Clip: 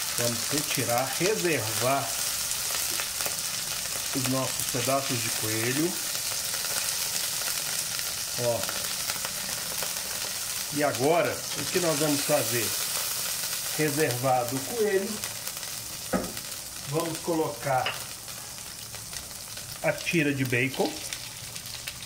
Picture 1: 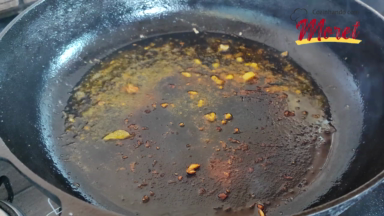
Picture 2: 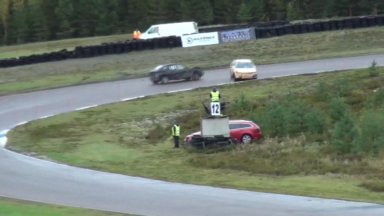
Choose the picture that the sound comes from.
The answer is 1